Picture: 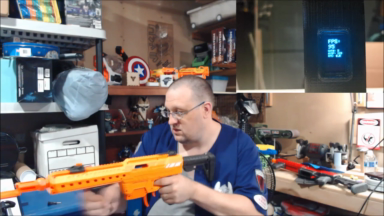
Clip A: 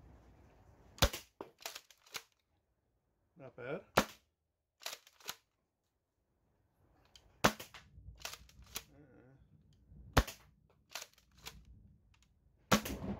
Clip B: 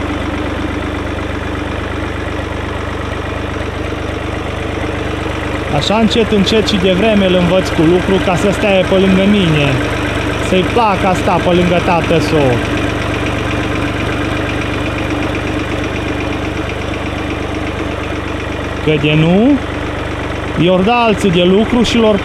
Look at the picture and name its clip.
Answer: A